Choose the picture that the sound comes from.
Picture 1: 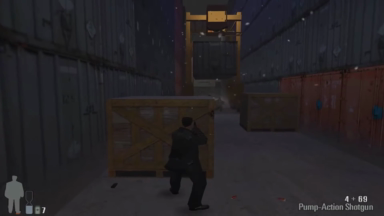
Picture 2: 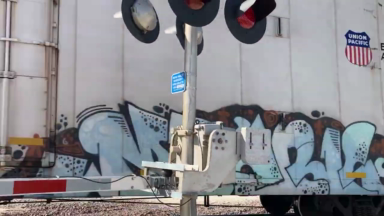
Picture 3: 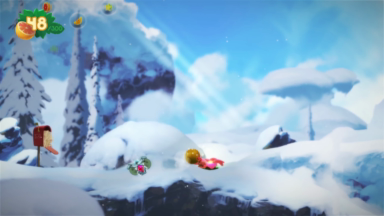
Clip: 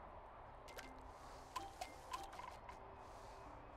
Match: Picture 3